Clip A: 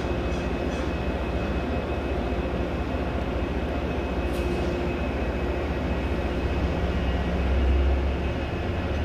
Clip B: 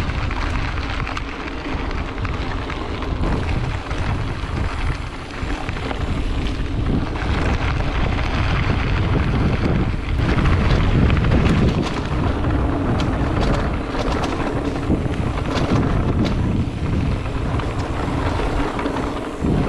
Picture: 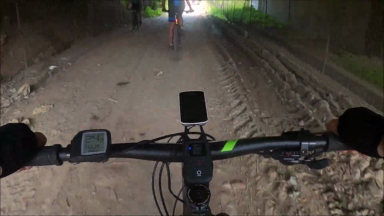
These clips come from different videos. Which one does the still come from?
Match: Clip B